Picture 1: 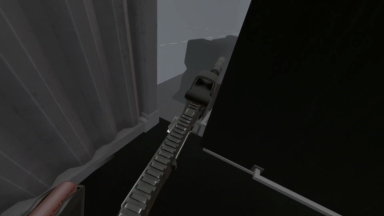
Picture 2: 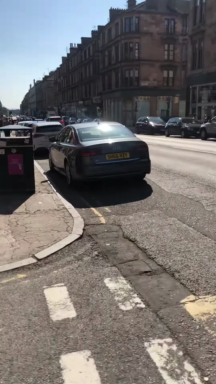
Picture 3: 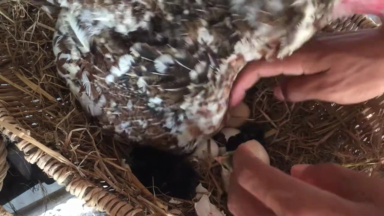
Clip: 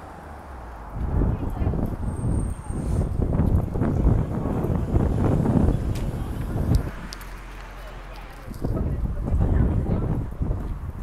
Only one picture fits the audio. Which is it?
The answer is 2